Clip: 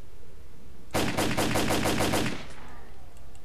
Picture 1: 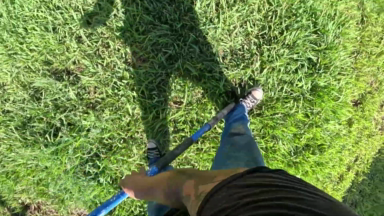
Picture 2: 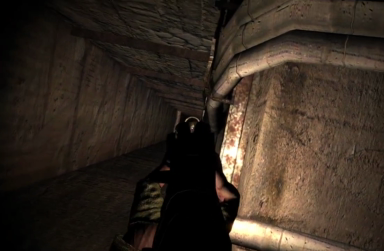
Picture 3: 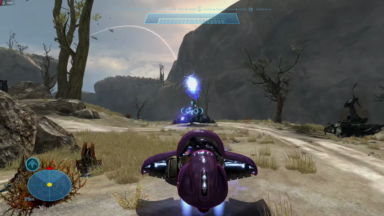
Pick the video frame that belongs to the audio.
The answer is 2